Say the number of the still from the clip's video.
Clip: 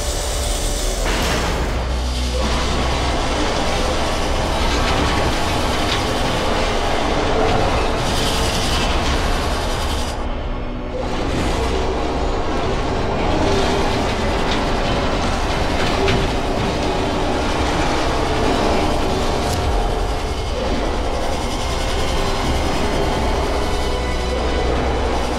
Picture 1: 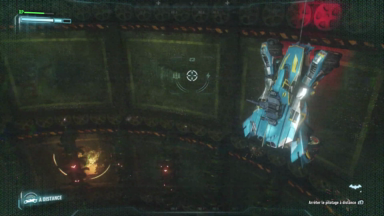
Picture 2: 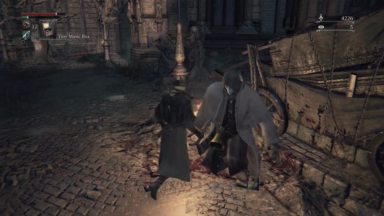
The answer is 1